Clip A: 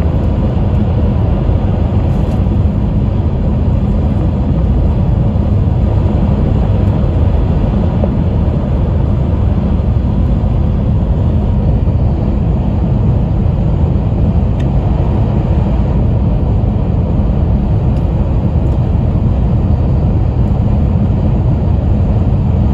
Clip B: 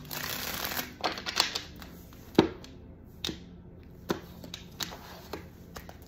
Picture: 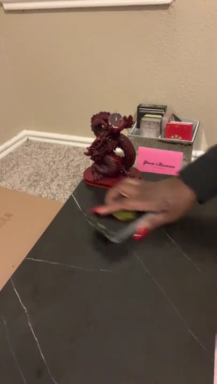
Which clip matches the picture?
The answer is B